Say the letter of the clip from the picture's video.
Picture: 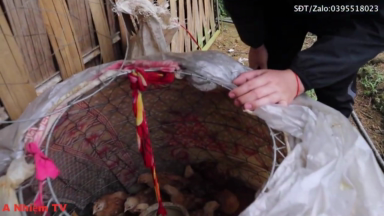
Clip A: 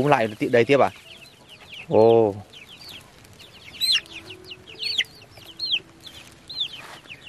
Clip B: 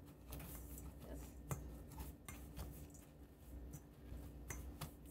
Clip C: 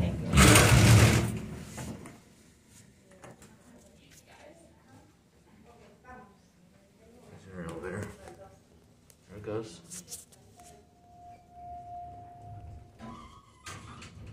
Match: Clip A